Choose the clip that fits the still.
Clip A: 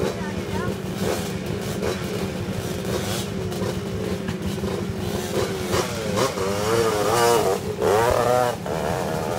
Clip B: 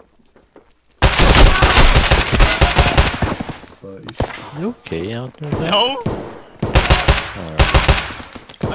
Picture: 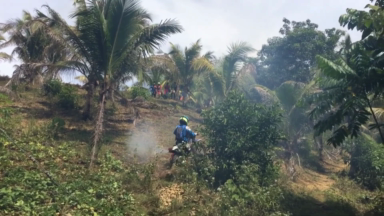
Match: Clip A